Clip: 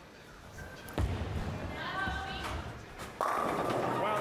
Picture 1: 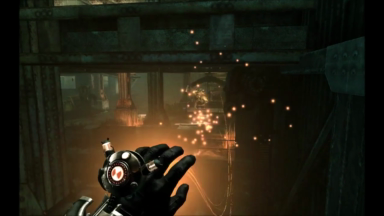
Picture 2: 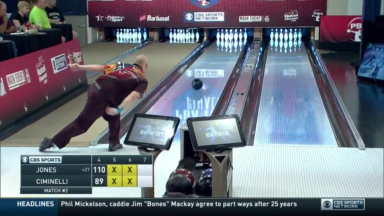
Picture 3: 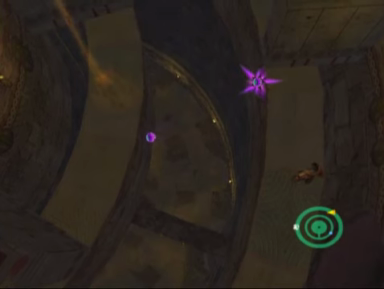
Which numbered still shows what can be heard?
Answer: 2